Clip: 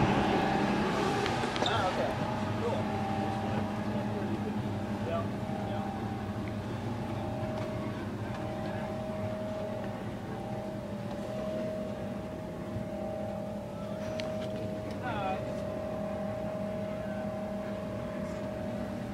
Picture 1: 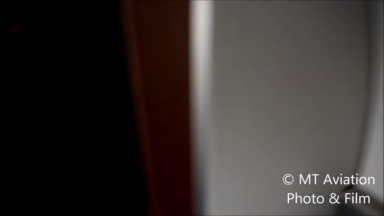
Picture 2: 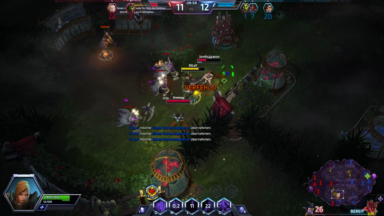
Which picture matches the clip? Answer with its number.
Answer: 1